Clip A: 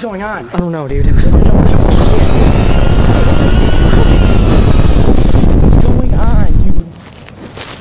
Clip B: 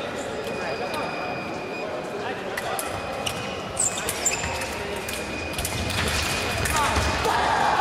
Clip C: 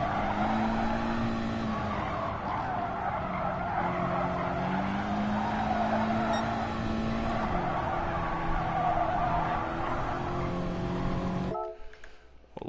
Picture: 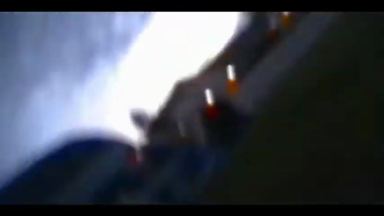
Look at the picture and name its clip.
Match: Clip A